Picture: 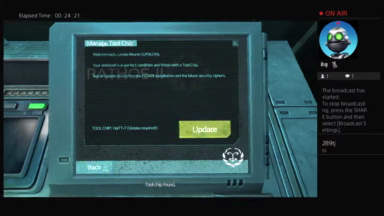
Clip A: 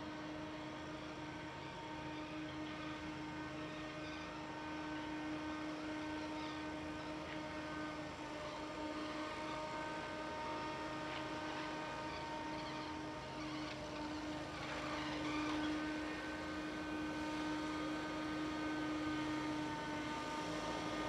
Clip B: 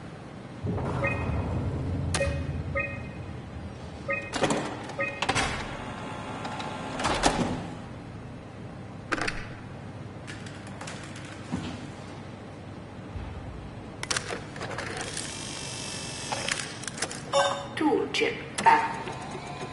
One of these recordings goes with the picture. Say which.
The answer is B